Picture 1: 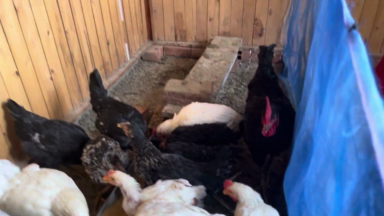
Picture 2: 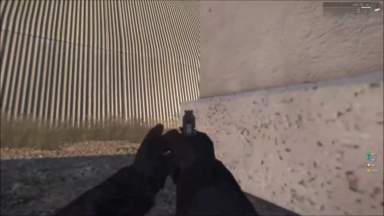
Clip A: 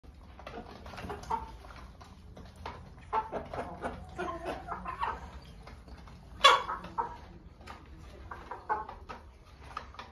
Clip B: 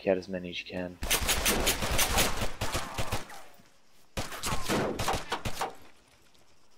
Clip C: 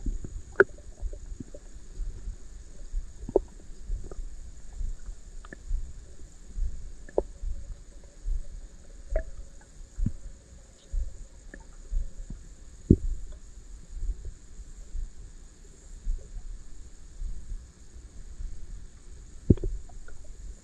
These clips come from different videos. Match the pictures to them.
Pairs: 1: A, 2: B